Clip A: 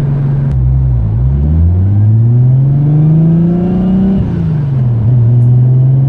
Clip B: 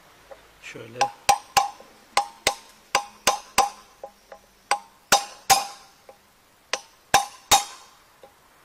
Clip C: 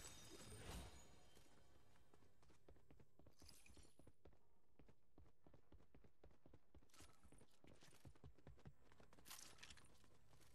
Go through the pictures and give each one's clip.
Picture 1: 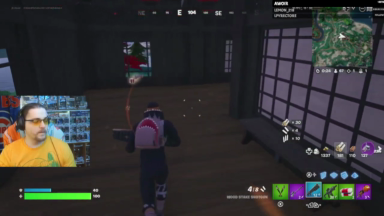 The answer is C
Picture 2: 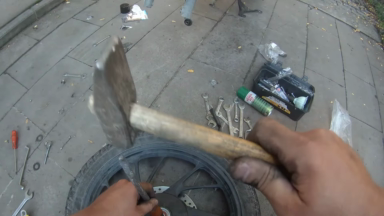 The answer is B